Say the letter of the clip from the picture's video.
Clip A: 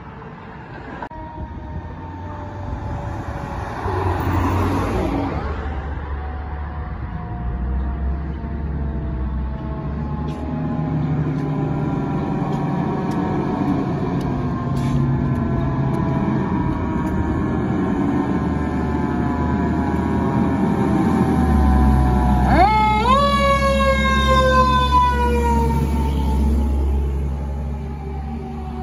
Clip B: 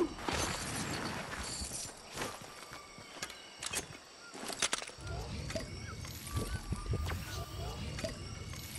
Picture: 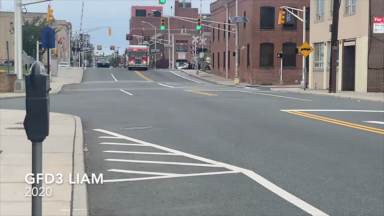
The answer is A